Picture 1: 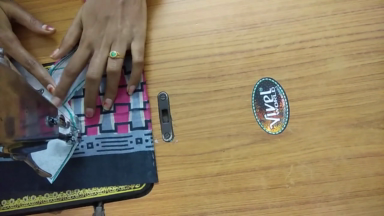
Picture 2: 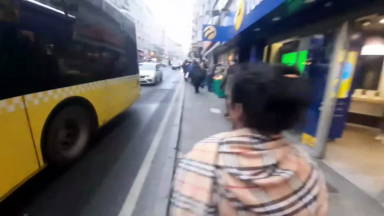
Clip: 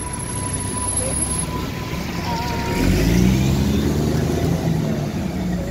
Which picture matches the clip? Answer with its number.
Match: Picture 2